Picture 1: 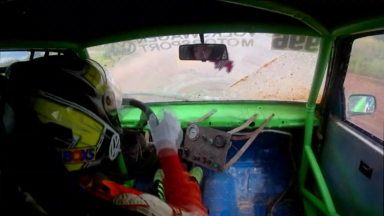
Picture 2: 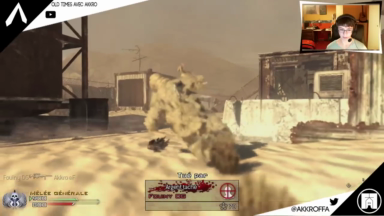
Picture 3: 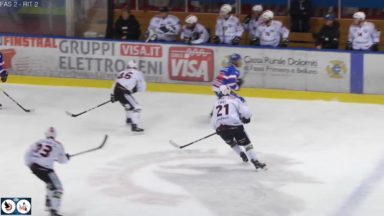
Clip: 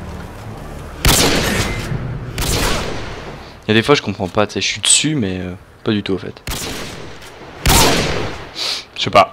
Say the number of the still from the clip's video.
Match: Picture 2